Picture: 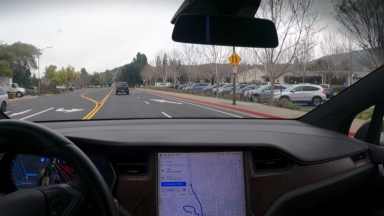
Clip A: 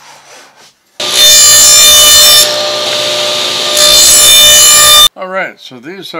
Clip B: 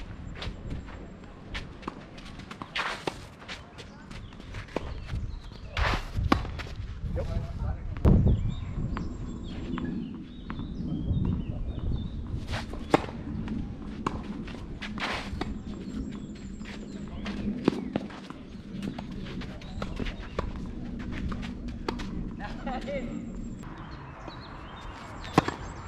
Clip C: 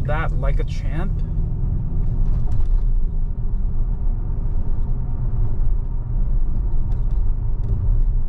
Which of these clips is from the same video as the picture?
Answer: C